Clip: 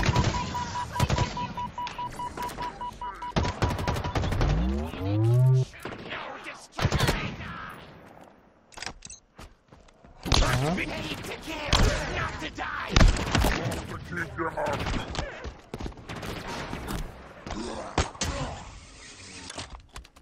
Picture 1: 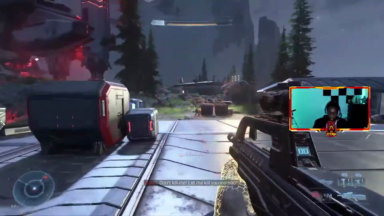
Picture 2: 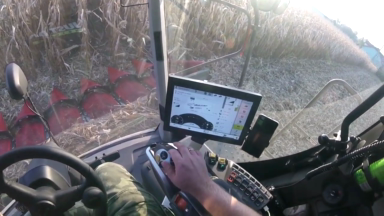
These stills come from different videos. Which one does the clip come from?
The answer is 1